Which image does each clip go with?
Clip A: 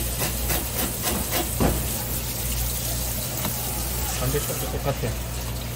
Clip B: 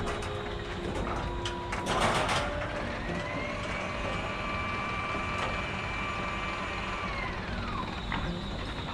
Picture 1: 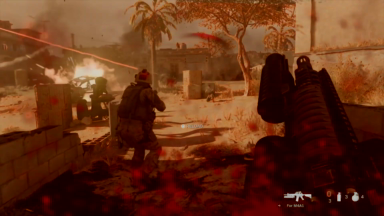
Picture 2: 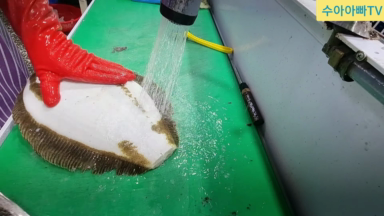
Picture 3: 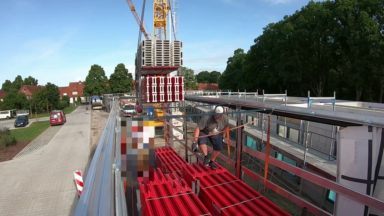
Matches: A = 2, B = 3